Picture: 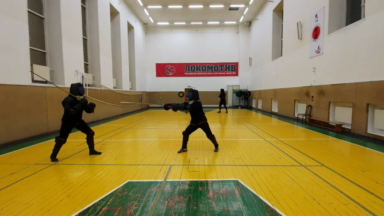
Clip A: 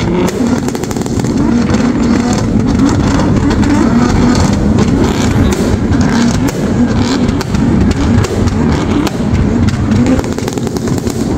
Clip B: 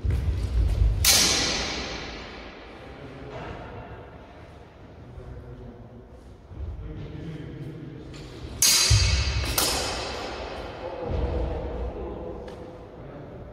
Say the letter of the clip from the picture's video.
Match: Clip B